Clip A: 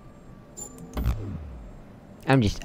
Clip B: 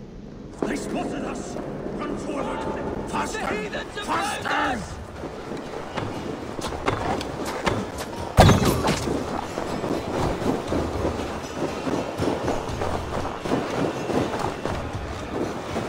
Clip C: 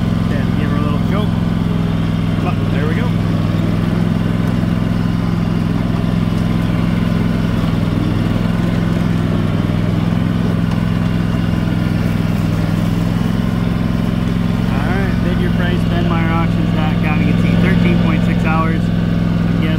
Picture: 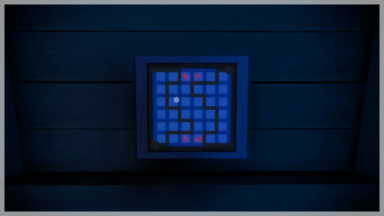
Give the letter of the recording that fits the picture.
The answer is A